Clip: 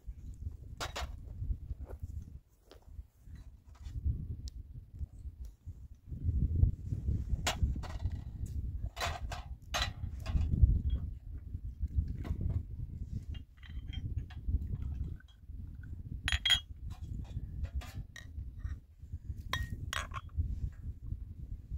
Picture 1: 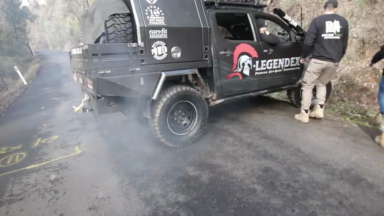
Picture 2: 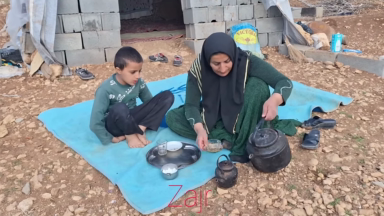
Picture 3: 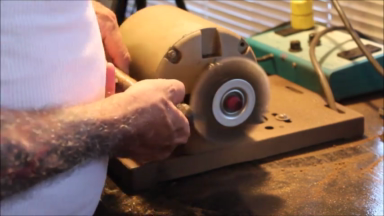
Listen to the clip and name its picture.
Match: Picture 2